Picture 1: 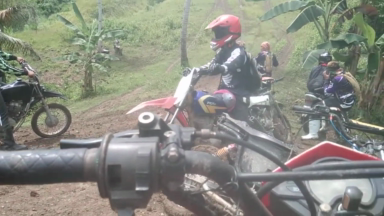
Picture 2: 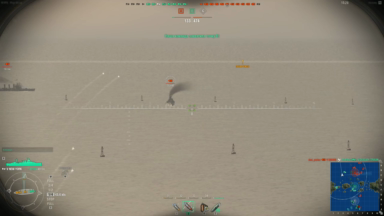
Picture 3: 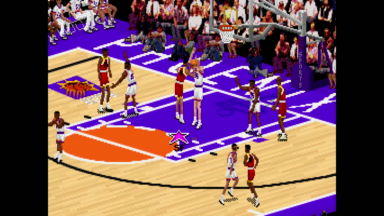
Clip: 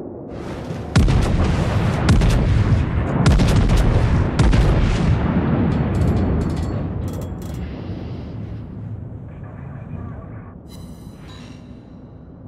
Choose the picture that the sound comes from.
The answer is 2